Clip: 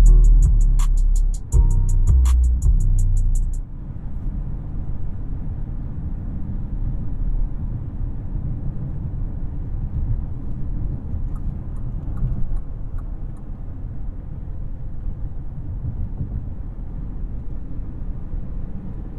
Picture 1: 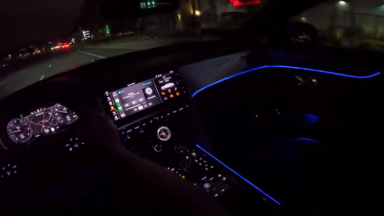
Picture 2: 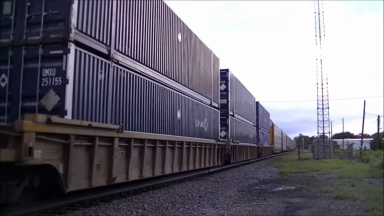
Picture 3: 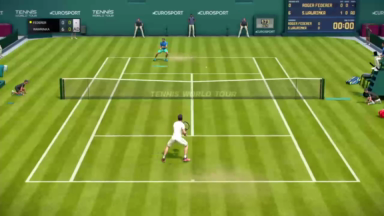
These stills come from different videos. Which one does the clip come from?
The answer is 1